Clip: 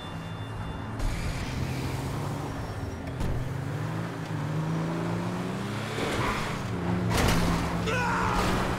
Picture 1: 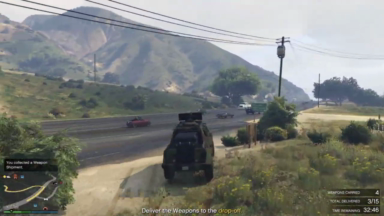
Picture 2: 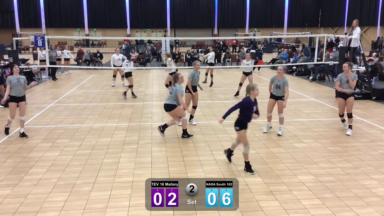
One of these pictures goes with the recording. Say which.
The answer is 1